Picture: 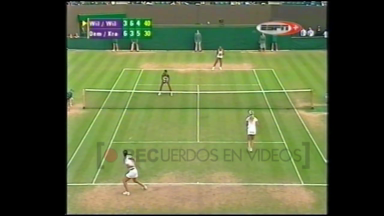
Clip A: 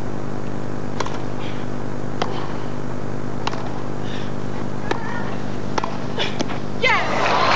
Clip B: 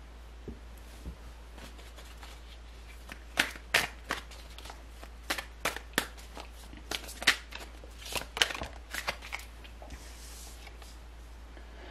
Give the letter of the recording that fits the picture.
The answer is A